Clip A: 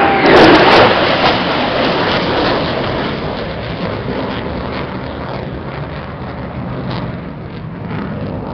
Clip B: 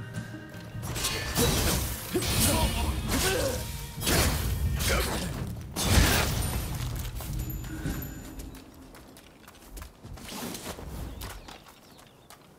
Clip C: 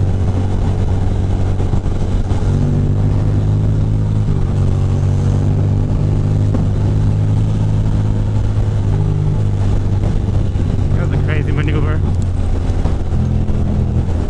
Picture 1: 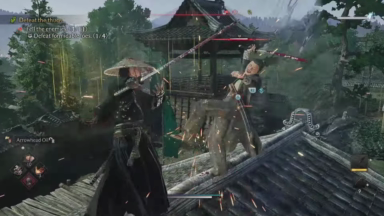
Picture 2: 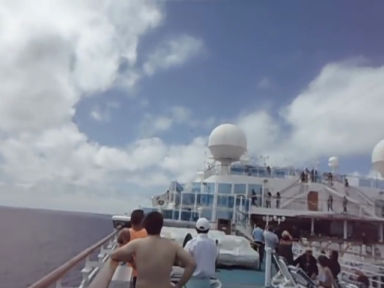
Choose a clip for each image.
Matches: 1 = B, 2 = A